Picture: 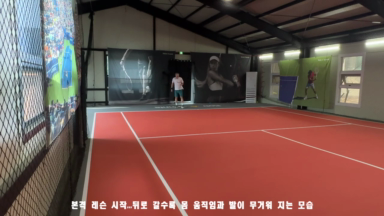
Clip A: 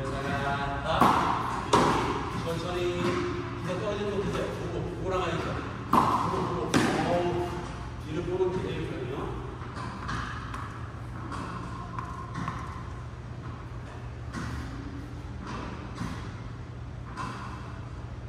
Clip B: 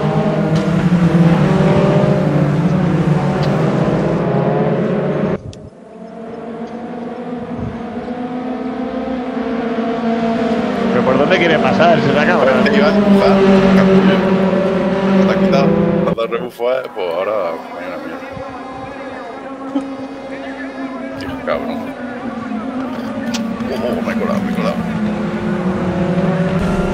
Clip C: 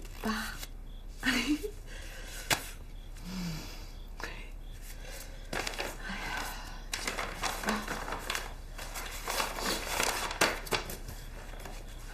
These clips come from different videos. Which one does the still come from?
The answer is A